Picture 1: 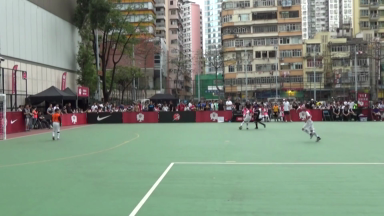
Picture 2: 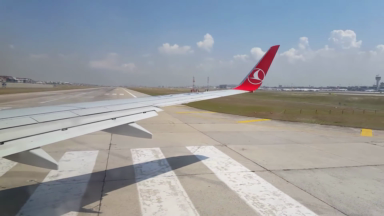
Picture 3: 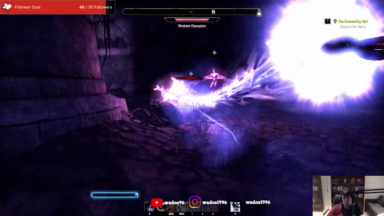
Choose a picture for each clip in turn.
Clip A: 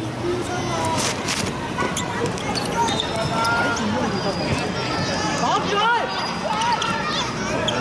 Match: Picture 1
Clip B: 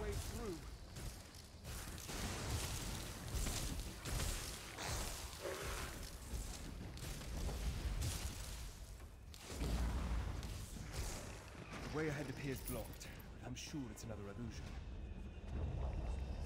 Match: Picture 3